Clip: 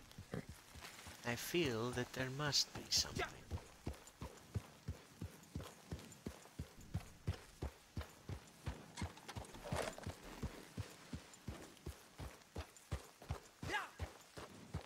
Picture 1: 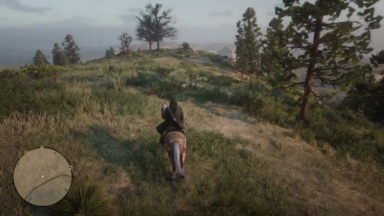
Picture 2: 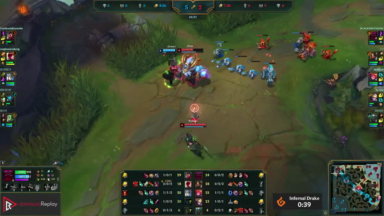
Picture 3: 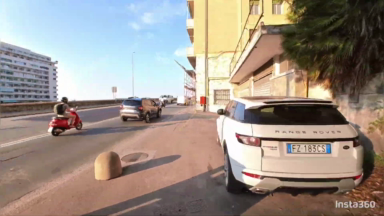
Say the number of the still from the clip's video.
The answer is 1